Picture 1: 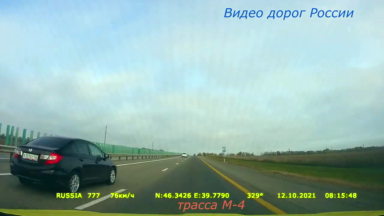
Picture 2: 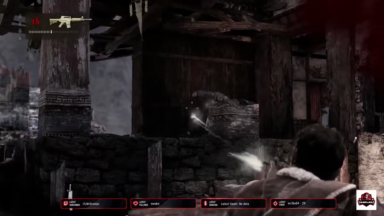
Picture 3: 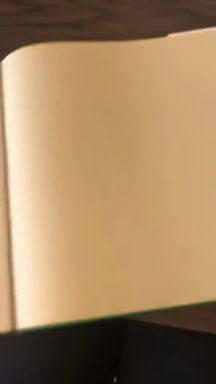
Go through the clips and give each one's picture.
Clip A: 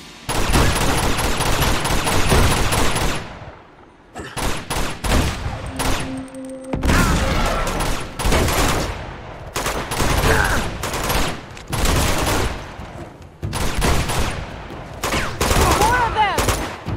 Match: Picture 2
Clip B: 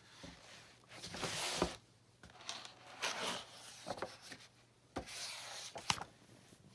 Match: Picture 3